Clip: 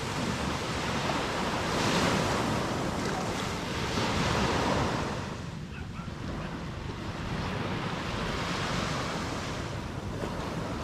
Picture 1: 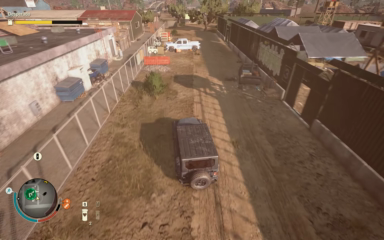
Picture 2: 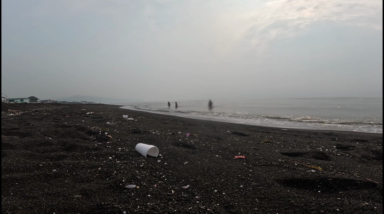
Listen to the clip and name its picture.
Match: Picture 2